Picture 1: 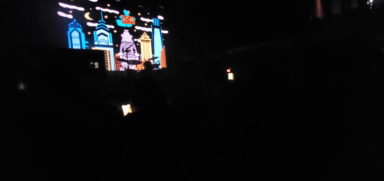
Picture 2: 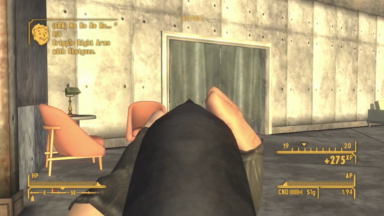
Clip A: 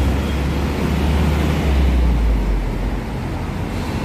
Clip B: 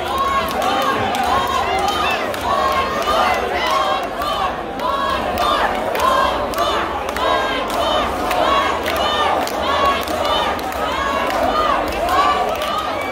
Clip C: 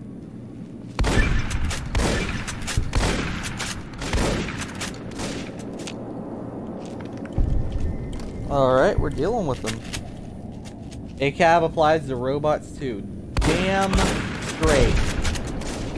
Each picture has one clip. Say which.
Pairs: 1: B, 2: C